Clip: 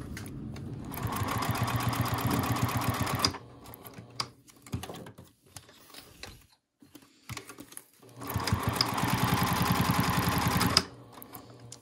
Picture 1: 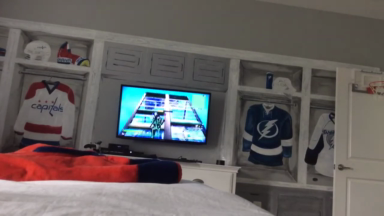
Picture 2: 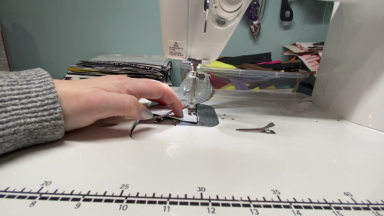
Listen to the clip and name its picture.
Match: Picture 2